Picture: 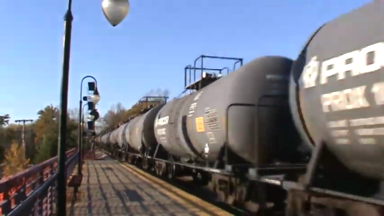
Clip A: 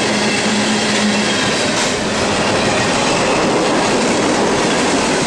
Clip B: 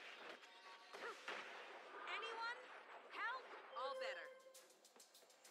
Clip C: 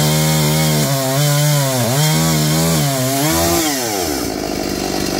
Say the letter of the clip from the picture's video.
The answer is A